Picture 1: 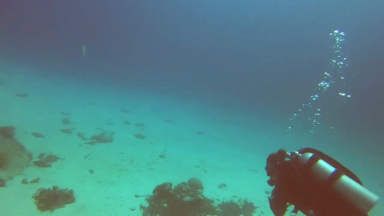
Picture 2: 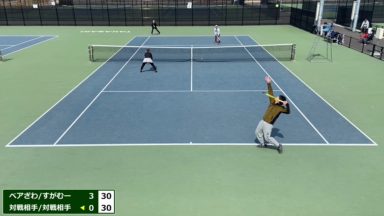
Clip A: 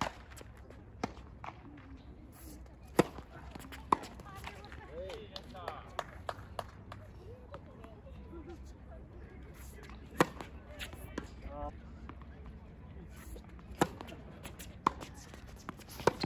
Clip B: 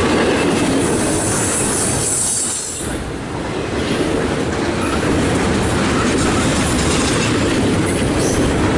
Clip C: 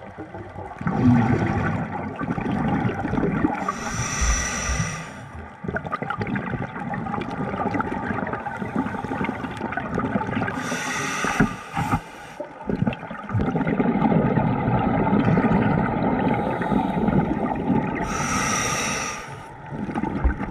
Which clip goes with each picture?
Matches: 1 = C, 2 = A